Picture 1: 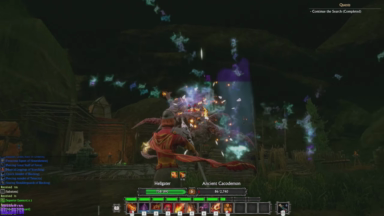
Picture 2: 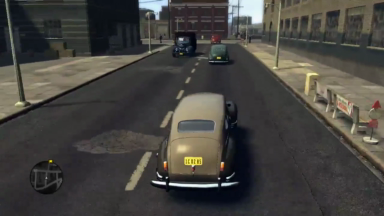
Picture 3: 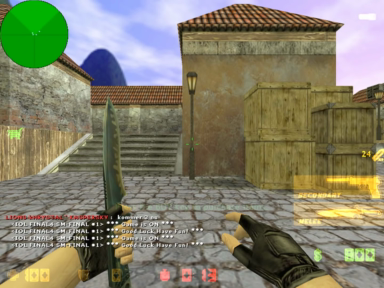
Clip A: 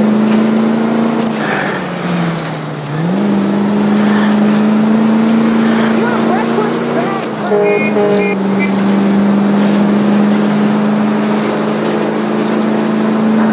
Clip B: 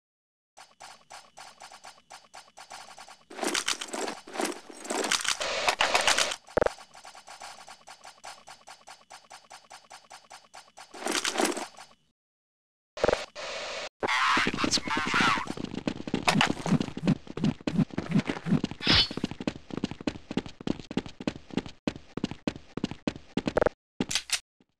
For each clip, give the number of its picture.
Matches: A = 2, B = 3